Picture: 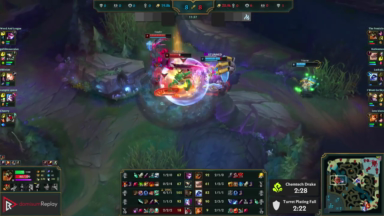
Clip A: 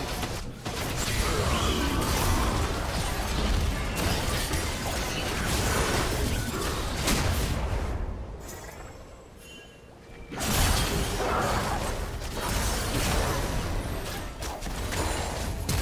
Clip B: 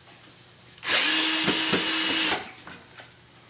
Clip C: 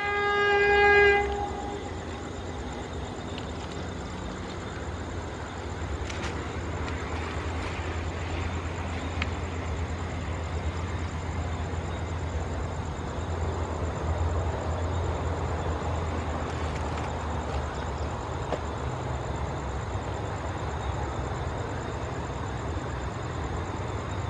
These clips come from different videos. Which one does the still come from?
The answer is A